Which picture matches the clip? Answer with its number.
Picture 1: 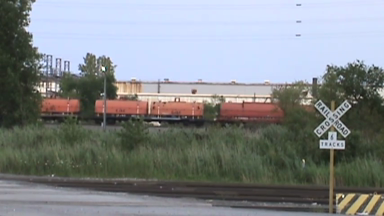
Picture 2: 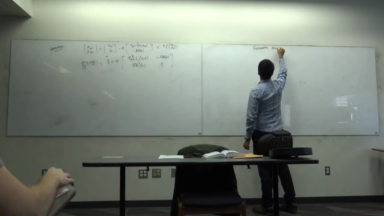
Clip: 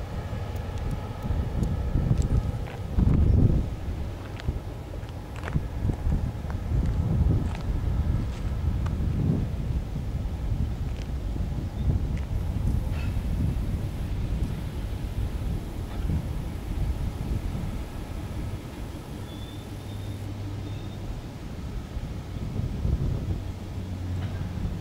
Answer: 1